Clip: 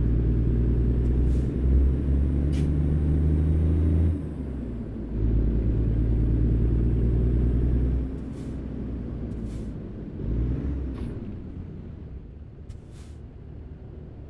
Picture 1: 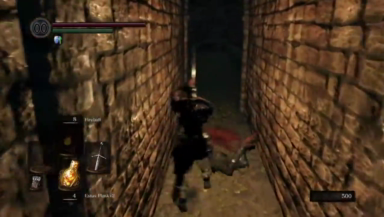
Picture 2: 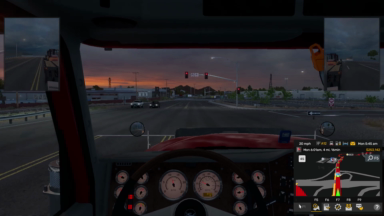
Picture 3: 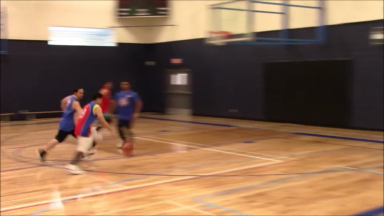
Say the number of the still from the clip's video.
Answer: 2